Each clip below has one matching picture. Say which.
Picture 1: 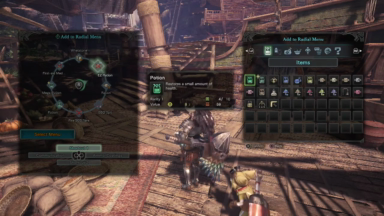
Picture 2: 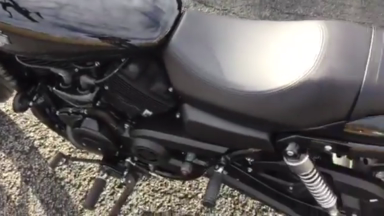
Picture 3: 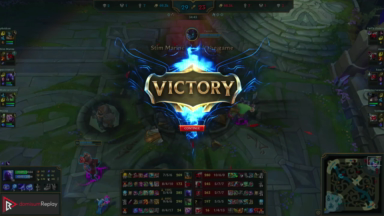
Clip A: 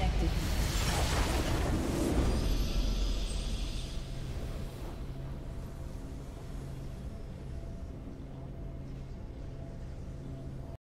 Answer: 3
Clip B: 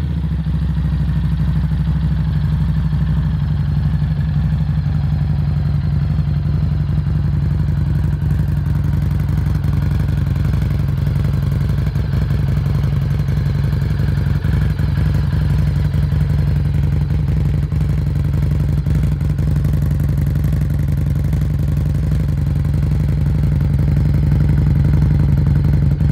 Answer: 2